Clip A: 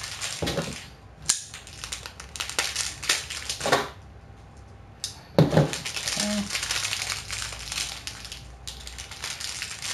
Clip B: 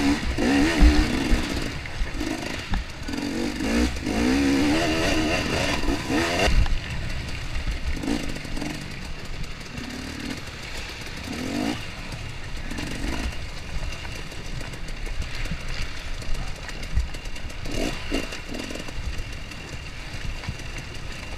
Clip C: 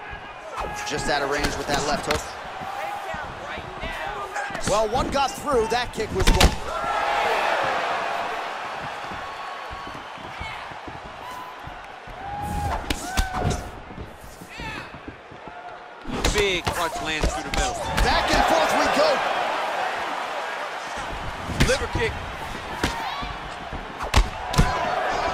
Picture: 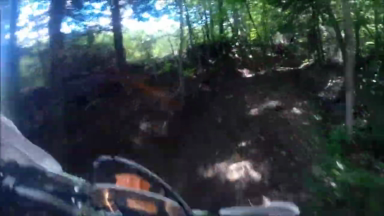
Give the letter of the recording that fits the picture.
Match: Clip B